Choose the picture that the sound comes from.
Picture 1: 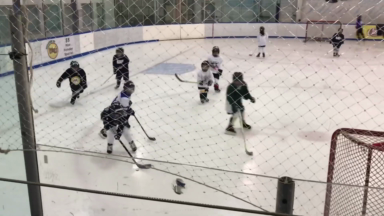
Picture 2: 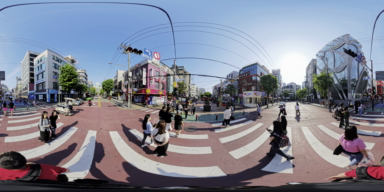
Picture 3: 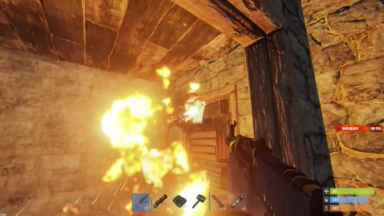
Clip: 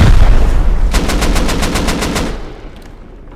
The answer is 3